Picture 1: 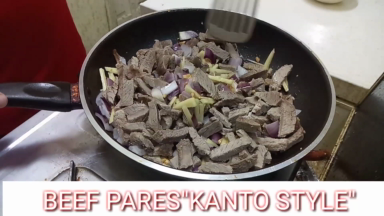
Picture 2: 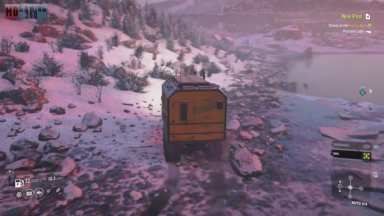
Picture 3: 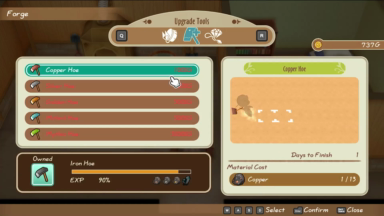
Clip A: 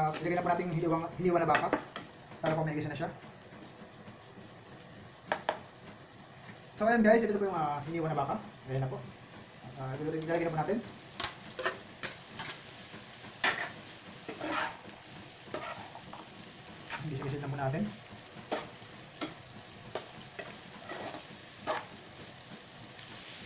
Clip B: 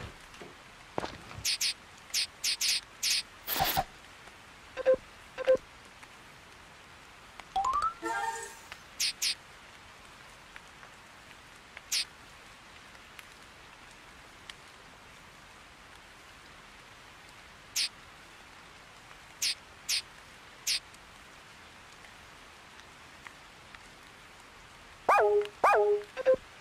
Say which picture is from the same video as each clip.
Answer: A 1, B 3